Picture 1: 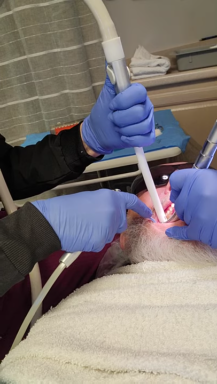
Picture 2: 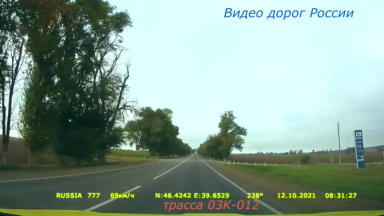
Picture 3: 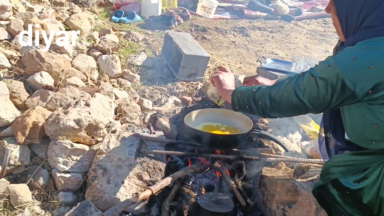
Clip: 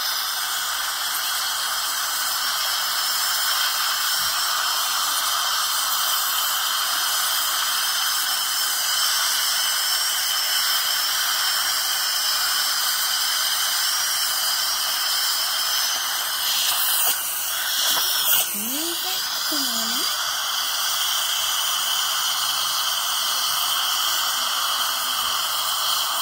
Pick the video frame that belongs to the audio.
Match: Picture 1